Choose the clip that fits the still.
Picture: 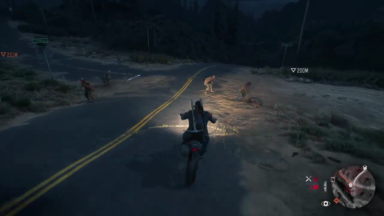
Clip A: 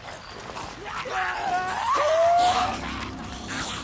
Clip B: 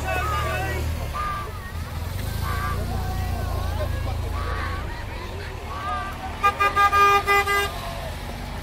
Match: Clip A